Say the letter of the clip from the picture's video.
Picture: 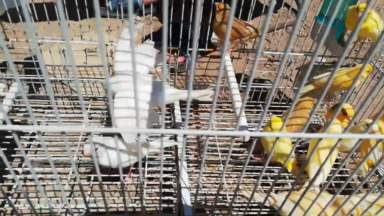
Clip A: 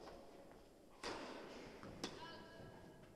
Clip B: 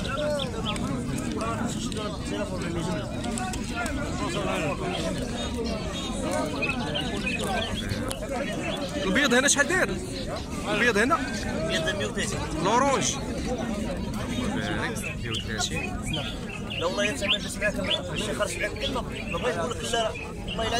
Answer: B